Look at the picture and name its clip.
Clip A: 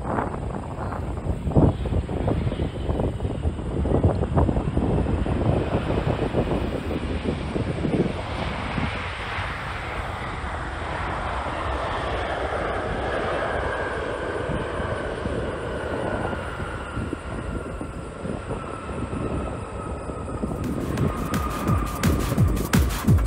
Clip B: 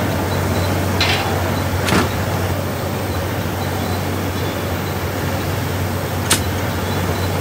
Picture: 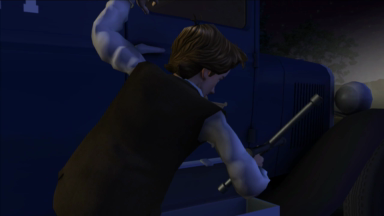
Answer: B